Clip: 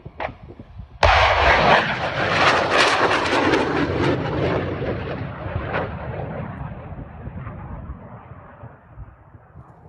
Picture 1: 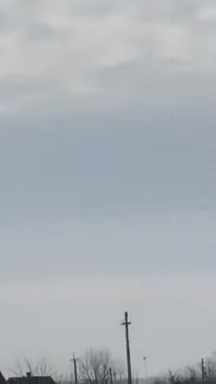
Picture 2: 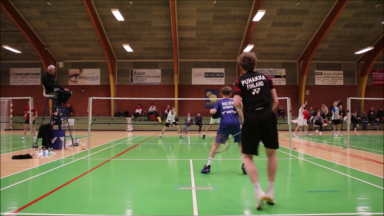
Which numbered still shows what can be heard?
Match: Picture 1